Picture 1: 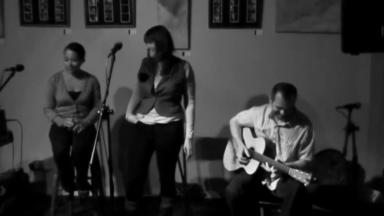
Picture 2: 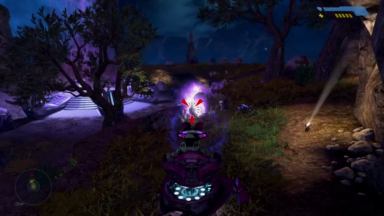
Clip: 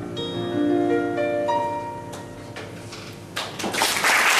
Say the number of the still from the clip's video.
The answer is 1